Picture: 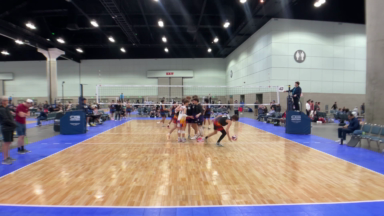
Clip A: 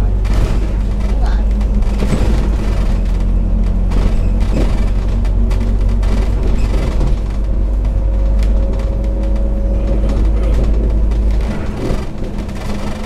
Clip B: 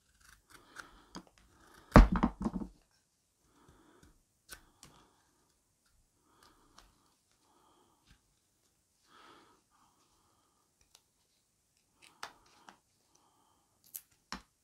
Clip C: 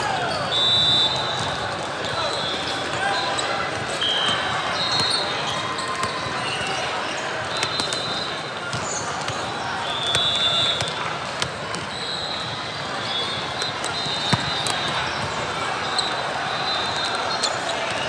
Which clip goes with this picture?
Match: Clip C